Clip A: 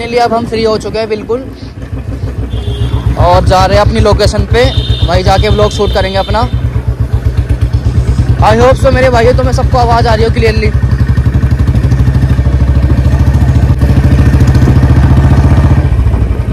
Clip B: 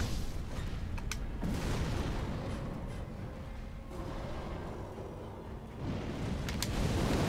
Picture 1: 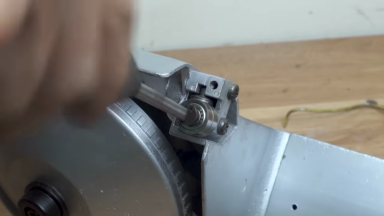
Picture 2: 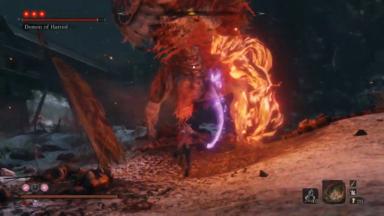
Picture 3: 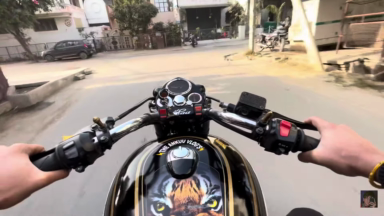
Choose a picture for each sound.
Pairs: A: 3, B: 2